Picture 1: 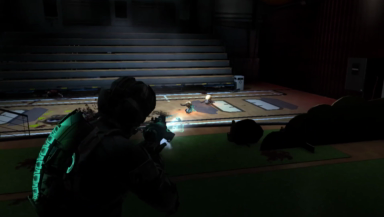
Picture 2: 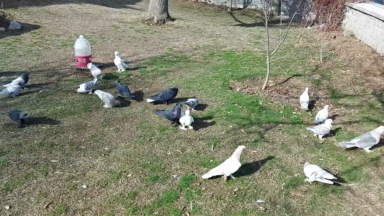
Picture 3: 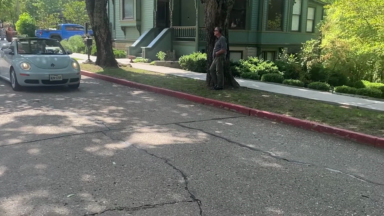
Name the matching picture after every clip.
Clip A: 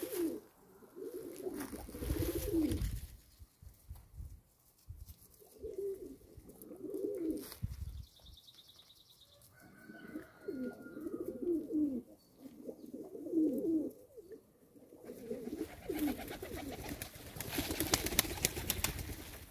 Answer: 2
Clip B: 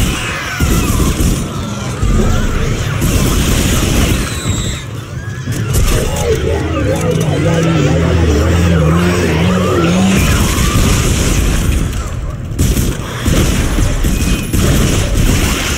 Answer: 1